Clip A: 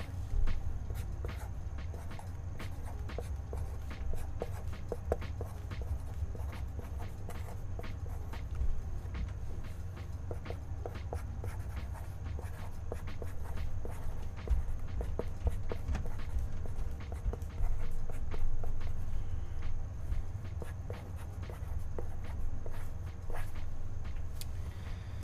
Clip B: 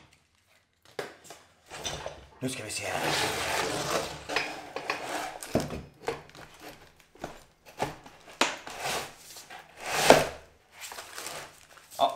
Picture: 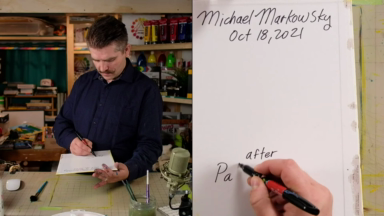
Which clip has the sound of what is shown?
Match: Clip A